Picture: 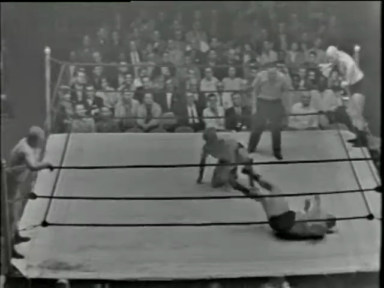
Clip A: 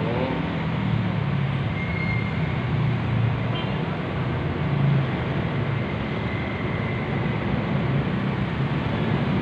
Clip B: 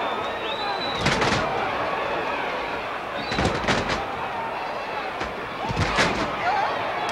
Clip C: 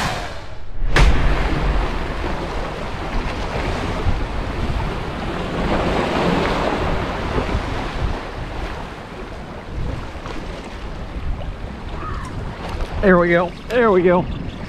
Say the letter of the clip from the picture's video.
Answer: B